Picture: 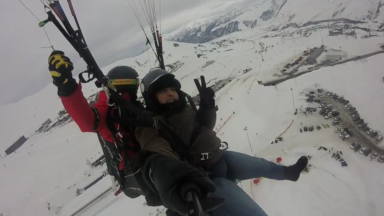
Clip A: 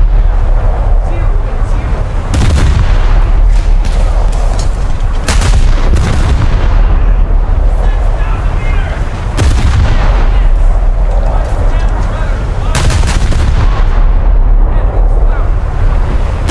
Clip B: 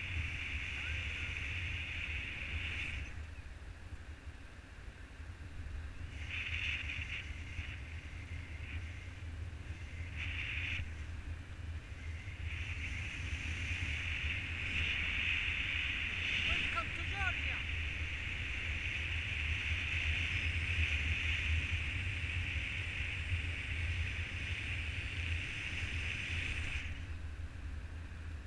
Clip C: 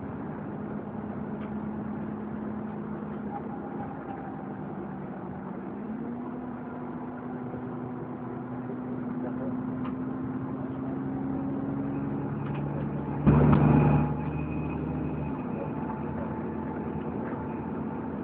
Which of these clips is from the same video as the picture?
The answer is B